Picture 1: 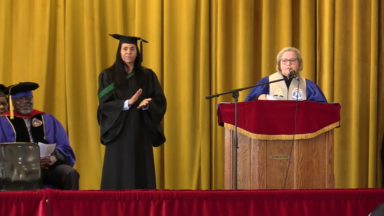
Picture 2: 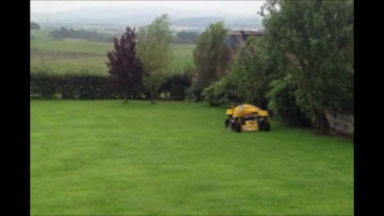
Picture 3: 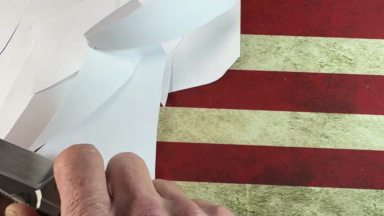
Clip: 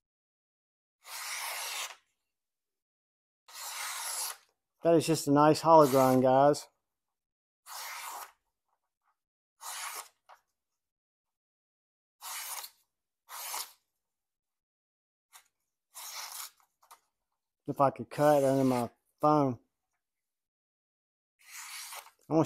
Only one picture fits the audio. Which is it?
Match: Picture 3